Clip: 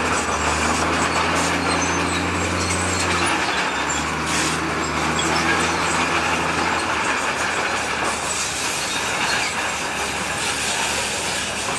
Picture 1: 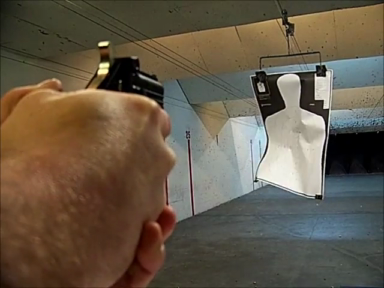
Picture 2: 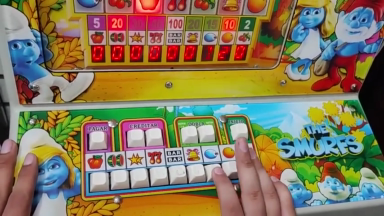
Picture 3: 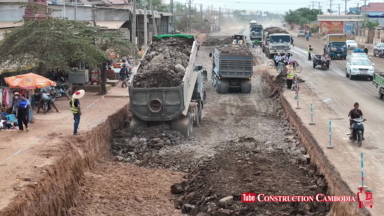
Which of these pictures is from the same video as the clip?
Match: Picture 3